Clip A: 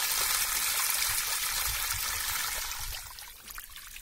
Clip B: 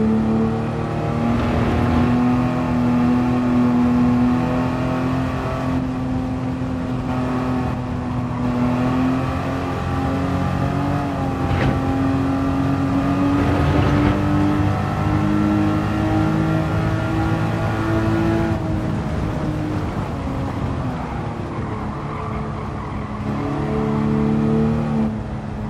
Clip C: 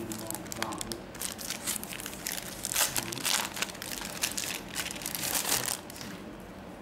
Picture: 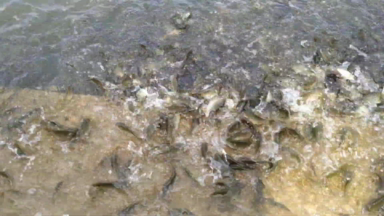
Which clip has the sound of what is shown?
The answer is A